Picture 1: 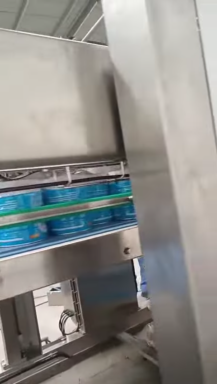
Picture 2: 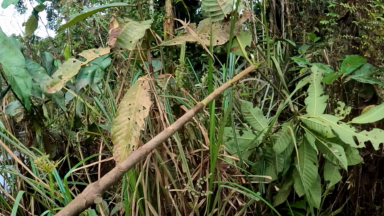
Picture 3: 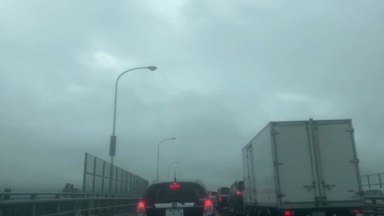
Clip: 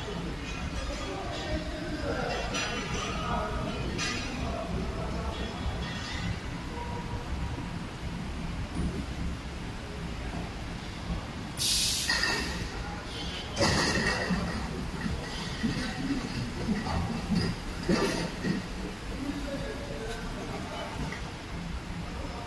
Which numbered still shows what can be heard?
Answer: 1